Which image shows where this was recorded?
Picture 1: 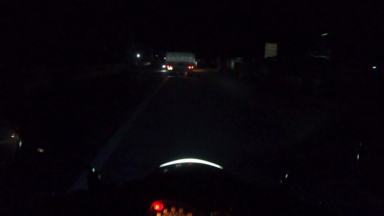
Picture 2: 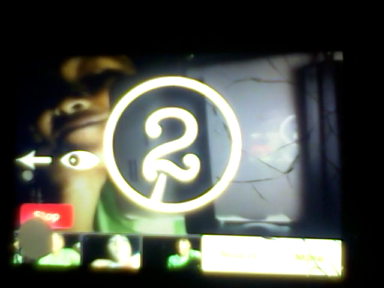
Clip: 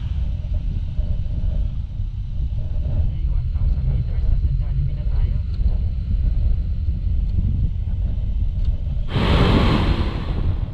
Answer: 1